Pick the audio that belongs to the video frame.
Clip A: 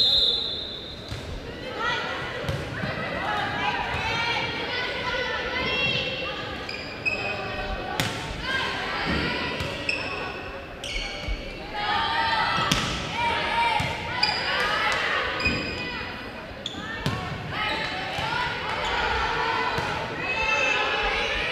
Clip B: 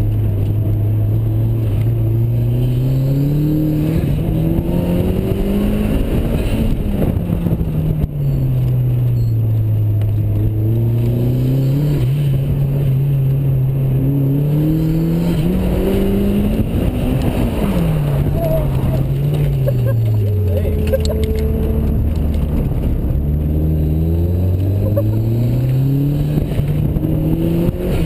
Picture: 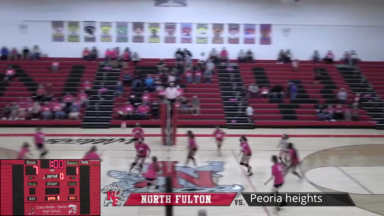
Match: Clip A